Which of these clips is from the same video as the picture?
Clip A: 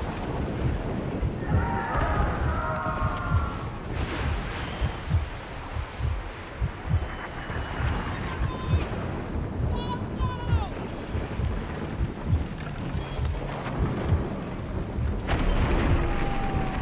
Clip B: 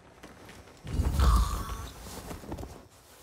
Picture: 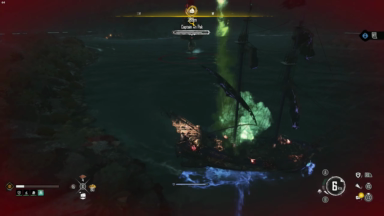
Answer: A